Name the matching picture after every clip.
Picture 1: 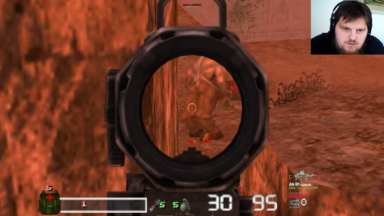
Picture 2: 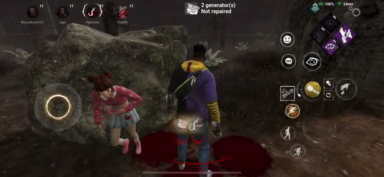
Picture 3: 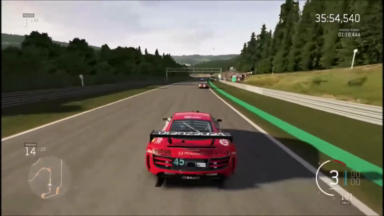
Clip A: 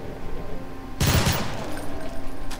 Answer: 1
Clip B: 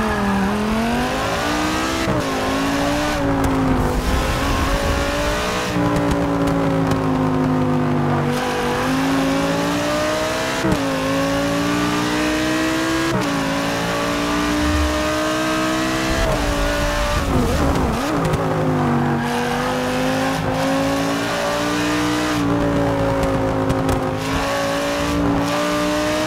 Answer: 3